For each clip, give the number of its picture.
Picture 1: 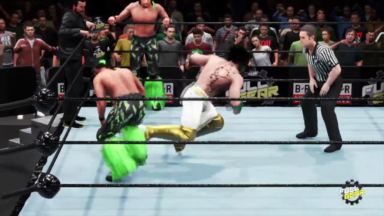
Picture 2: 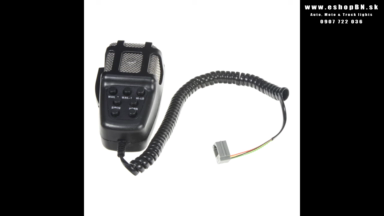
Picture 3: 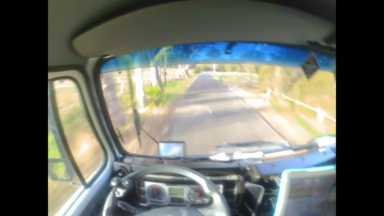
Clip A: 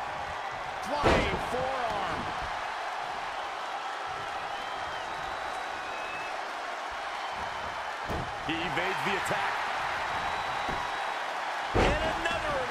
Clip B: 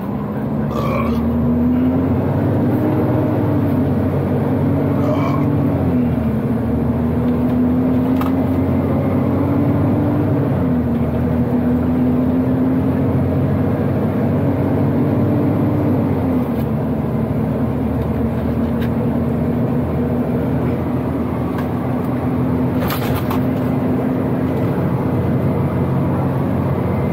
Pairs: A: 1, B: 3